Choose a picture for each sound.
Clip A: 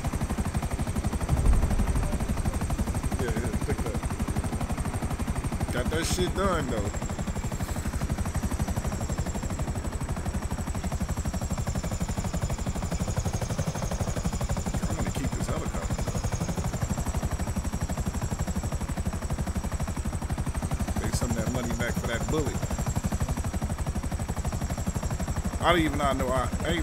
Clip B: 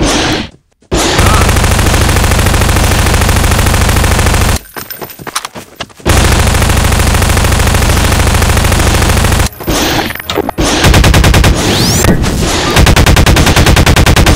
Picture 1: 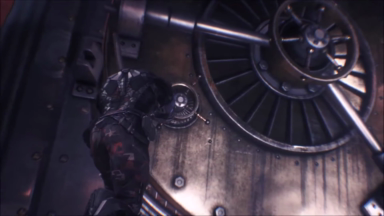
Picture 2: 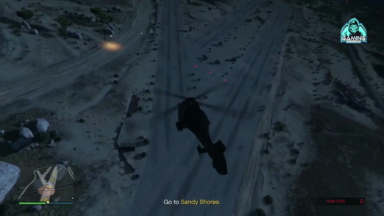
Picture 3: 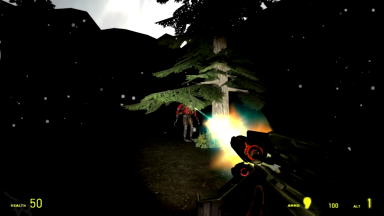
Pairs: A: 2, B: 3